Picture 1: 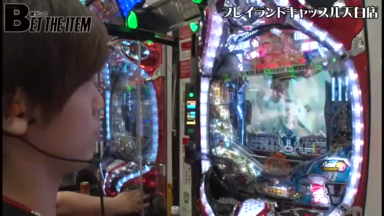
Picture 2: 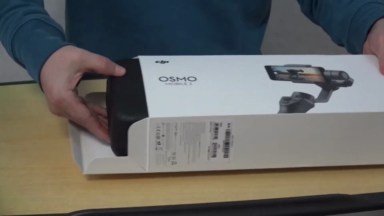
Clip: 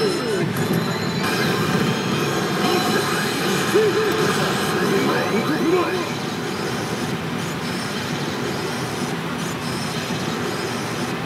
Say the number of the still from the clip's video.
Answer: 1